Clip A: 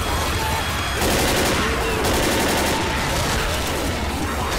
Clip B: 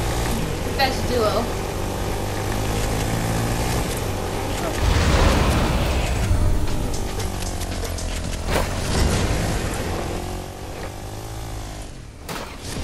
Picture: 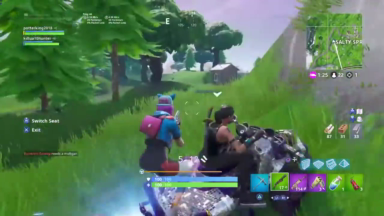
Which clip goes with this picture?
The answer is B